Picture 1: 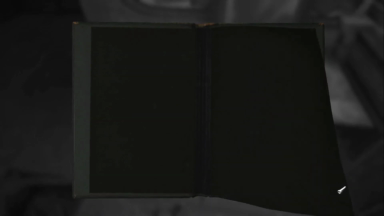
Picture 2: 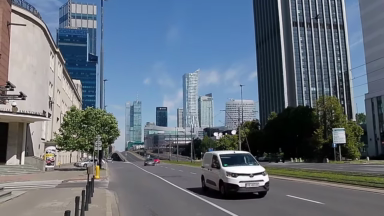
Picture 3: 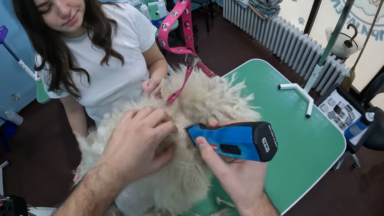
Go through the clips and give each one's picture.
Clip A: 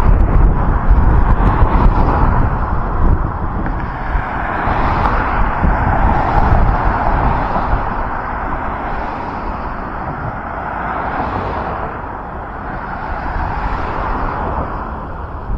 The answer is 2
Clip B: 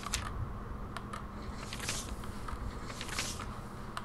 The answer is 1